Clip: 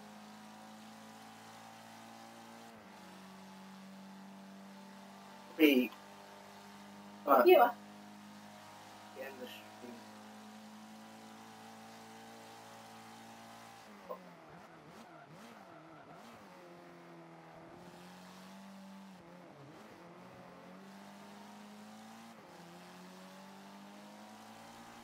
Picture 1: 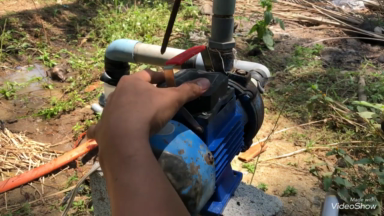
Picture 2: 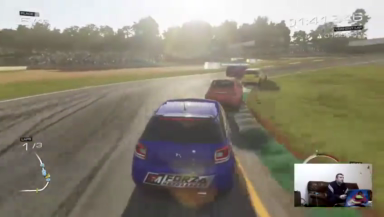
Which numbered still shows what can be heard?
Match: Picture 2